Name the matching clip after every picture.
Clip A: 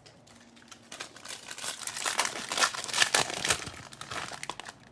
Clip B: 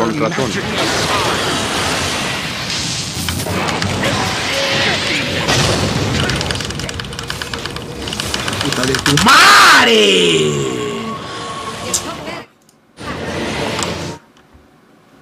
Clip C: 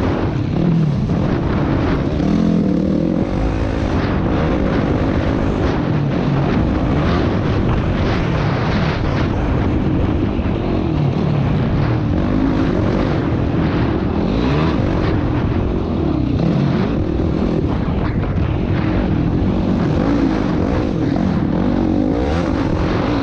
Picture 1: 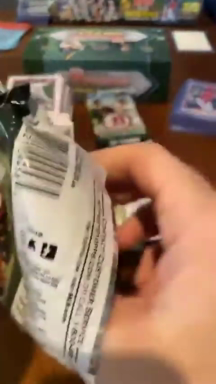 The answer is A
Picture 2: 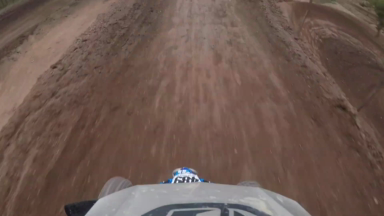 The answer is C